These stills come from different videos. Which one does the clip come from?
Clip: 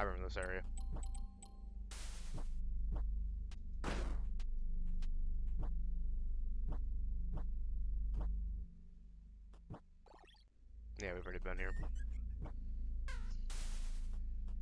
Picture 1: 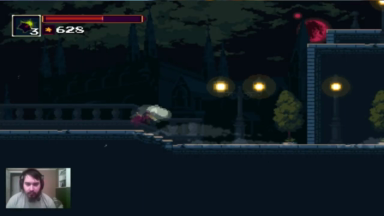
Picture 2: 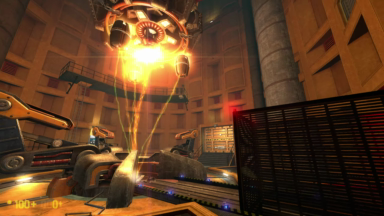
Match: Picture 1